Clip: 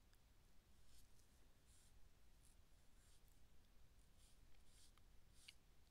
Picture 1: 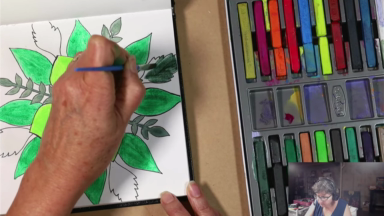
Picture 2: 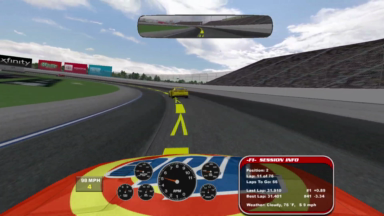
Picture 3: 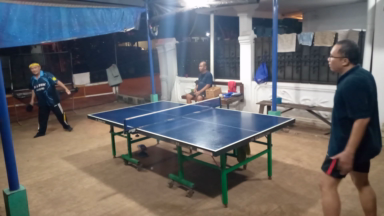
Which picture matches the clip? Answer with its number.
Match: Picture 1